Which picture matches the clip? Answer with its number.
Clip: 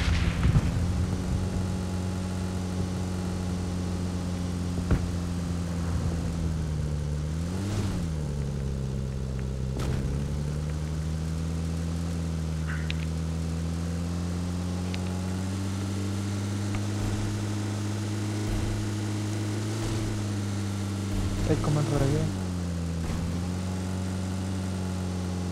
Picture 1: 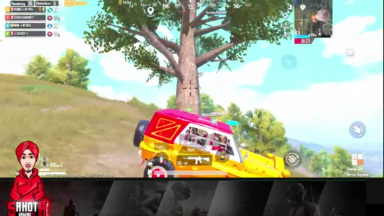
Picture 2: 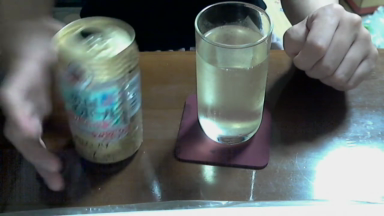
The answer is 1